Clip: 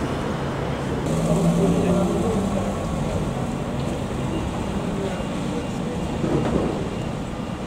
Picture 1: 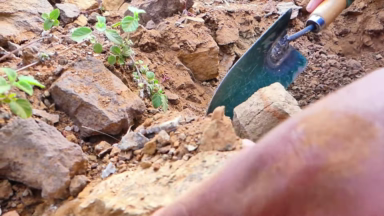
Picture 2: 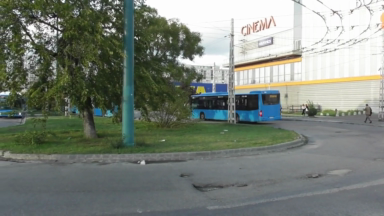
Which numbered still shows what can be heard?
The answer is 2